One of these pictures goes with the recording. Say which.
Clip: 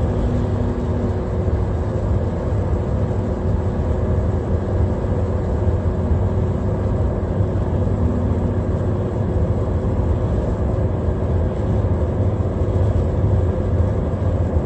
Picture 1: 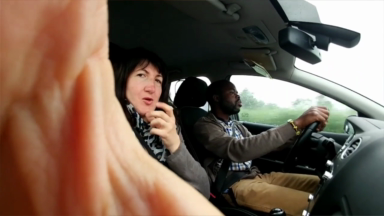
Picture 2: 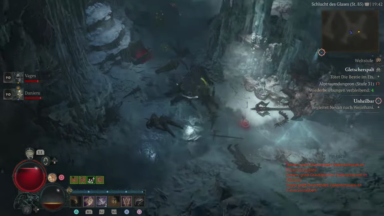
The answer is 1